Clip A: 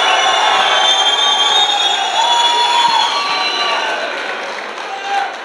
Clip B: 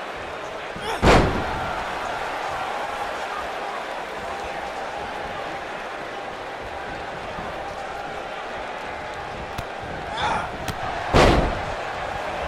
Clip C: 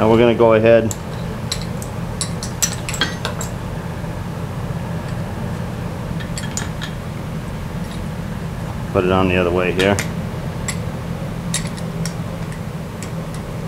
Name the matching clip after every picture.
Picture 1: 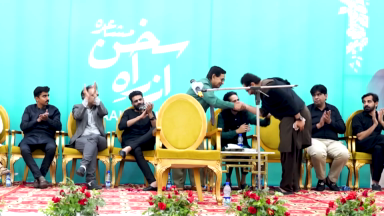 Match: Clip A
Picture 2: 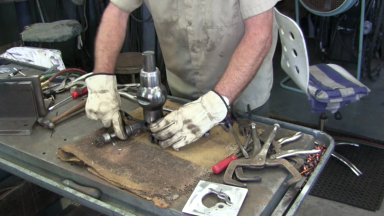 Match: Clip C